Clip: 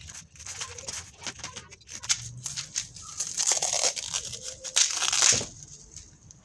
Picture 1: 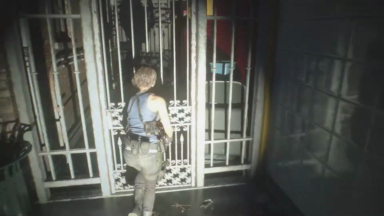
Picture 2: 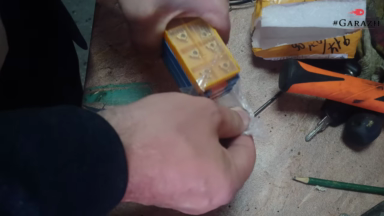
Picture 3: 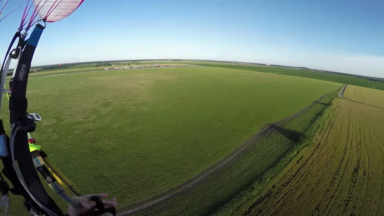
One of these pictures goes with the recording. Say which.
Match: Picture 2